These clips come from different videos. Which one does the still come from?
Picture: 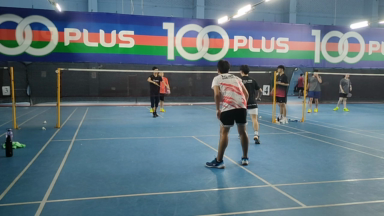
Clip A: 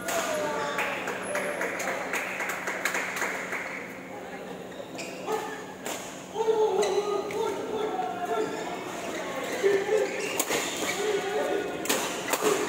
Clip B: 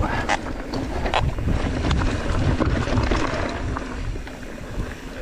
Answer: A